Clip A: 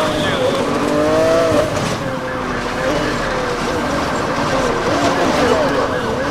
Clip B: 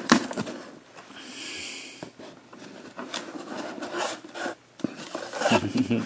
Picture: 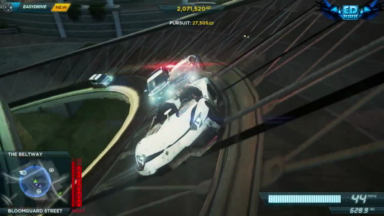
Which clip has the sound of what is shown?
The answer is A